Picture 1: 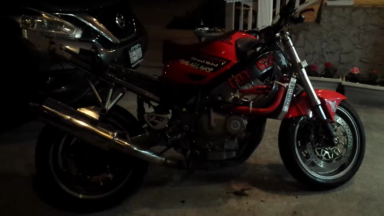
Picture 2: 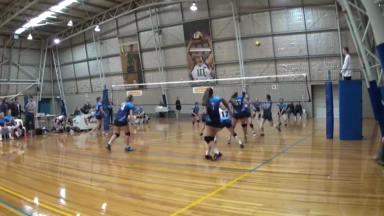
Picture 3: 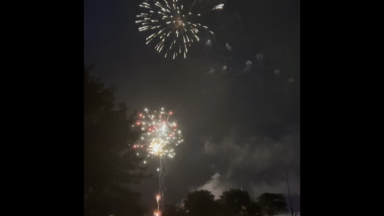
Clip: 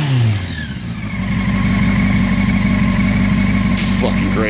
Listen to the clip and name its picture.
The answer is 1